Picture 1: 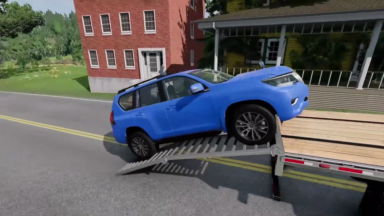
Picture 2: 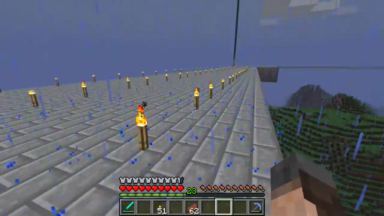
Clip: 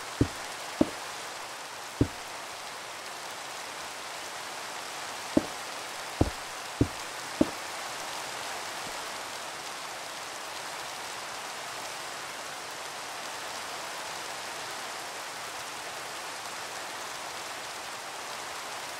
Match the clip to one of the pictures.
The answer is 2